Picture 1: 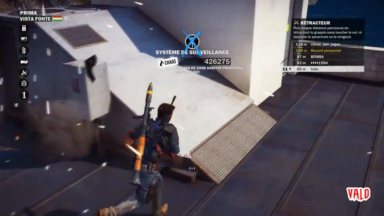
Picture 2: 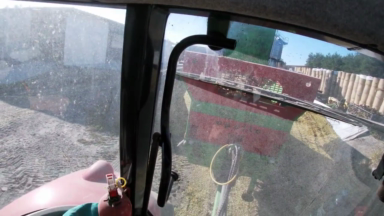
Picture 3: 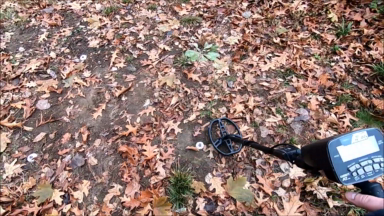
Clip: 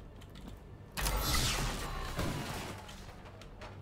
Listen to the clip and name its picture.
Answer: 1